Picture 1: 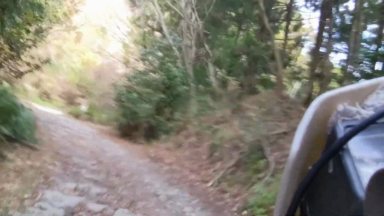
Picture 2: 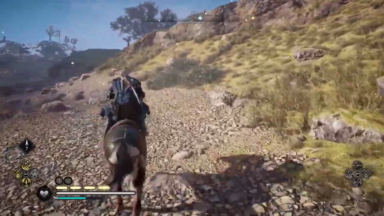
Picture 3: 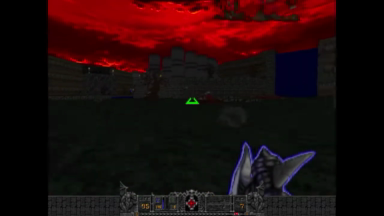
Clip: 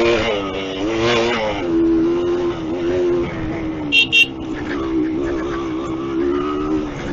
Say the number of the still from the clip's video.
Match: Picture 1